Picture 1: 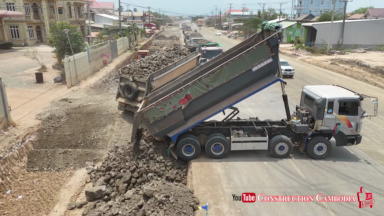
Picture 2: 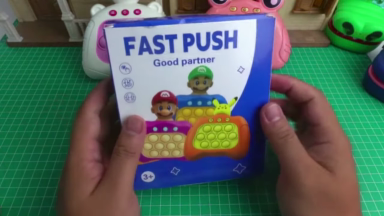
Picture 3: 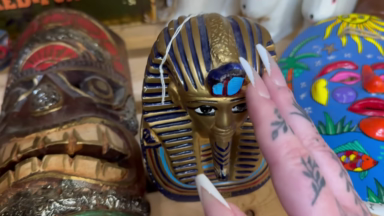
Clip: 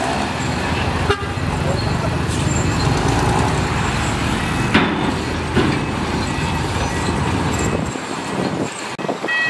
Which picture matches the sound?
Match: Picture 1